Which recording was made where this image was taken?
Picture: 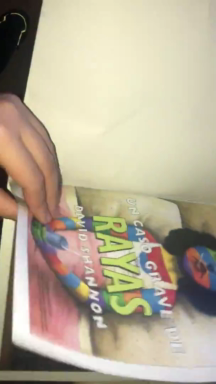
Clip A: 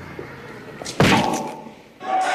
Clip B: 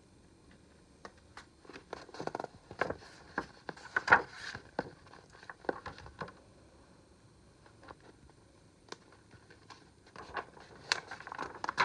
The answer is B